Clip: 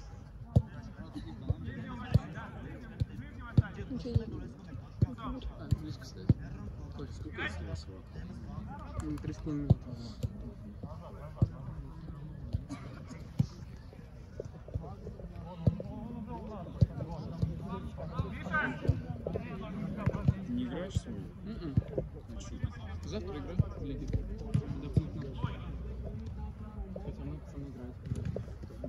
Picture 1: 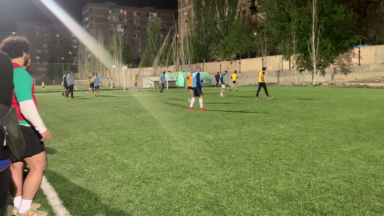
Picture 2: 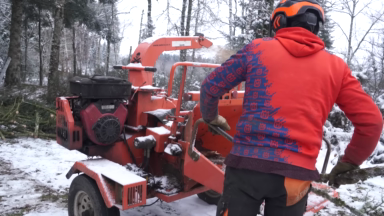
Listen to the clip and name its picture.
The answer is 1